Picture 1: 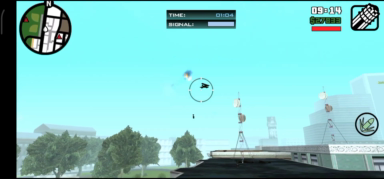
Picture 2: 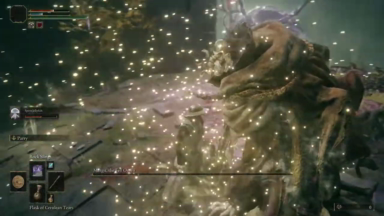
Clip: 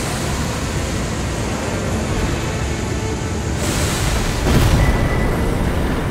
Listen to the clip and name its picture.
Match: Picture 2